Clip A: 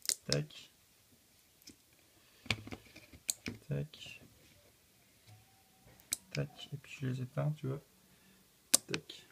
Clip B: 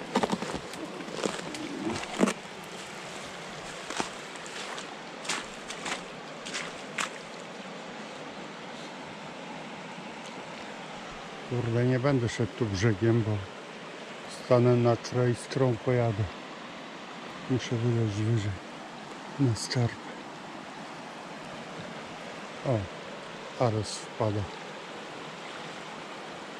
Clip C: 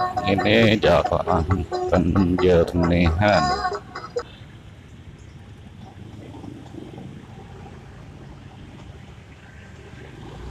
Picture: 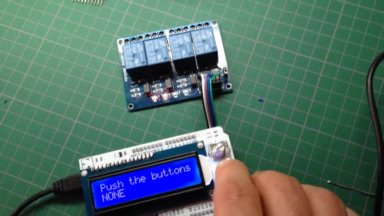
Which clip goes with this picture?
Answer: A